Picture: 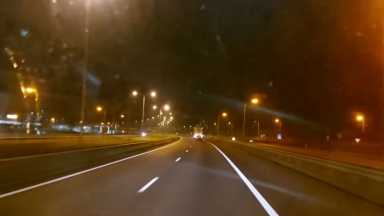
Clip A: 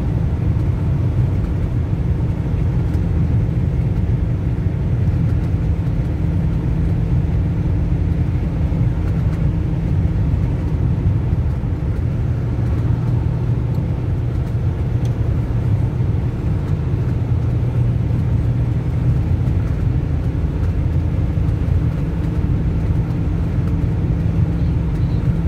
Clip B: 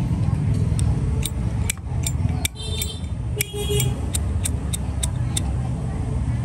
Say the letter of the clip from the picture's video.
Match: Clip A